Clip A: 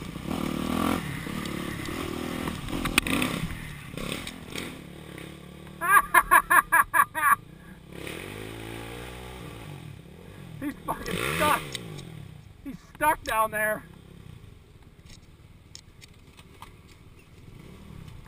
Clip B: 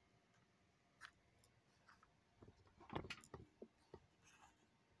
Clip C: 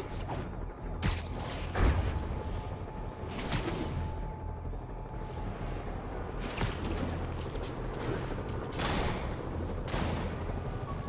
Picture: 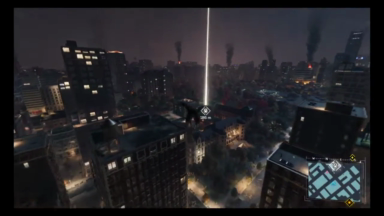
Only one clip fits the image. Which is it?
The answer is C